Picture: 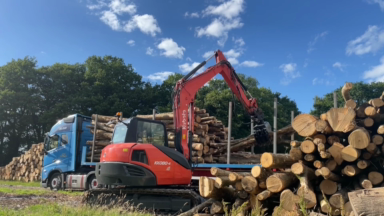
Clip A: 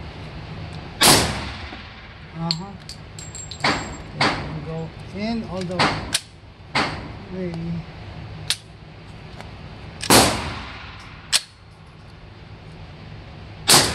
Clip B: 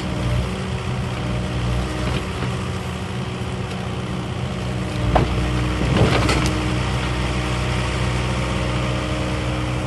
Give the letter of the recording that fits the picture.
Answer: B